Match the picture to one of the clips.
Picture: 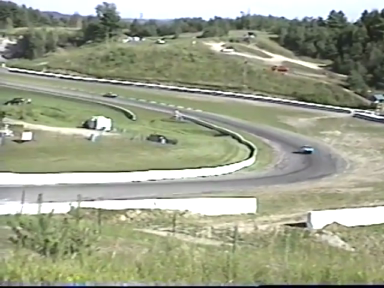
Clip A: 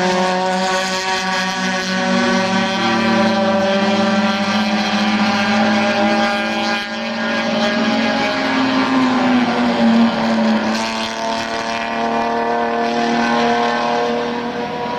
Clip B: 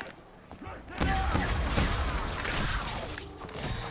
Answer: A